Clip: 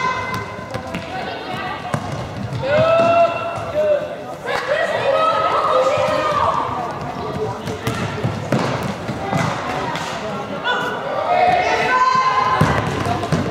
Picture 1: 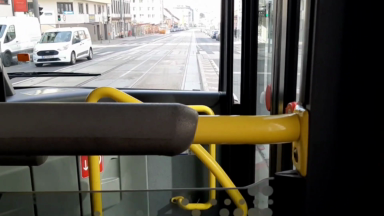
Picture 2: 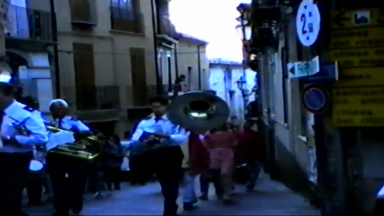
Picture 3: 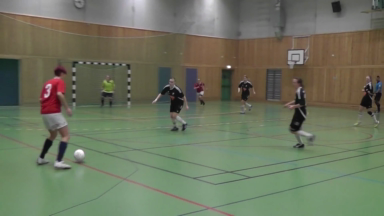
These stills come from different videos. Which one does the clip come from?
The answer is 3